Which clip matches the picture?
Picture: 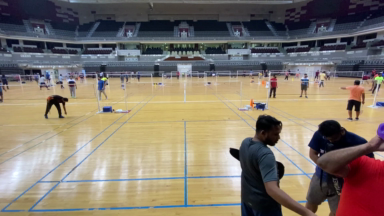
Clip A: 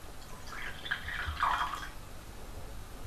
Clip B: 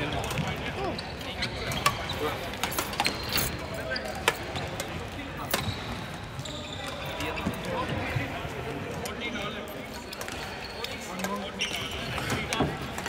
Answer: B